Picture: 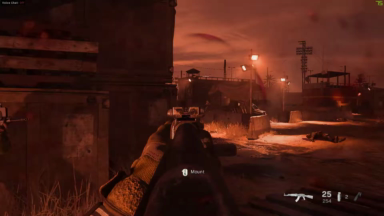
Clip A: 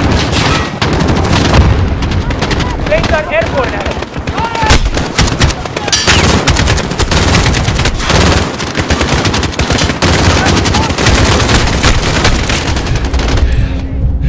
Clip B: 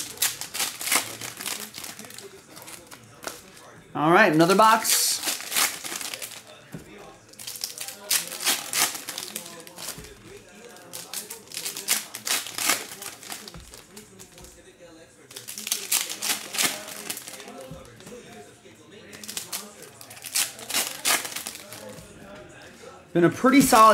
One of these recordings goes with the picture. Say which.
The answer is A